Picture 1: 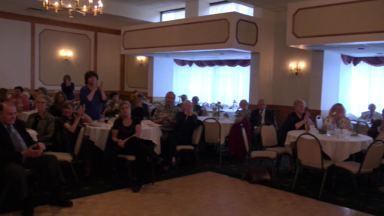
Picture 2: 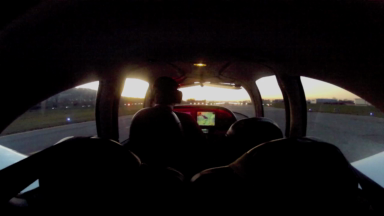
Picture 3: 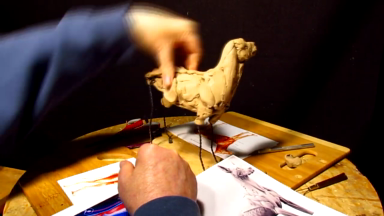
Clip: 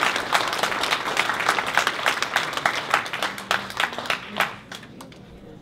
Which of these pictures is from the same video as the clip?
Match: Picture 1